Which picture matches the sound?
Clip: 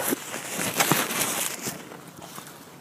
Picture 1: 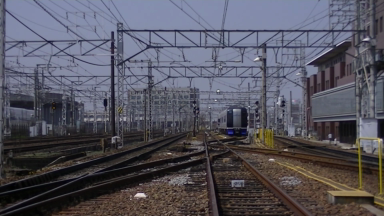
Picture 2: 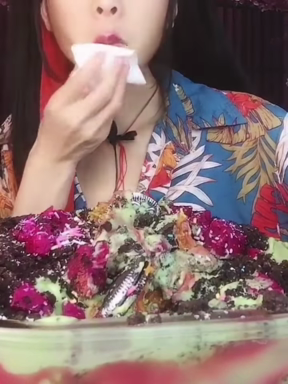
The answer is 2